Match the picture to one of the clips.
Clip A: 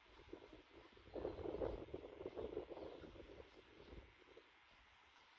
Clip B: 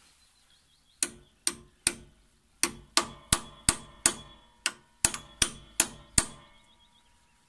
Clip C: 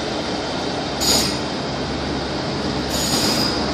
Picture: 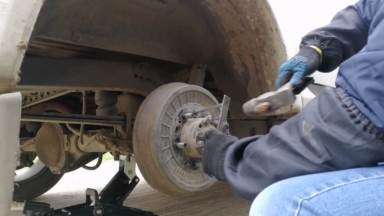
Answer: B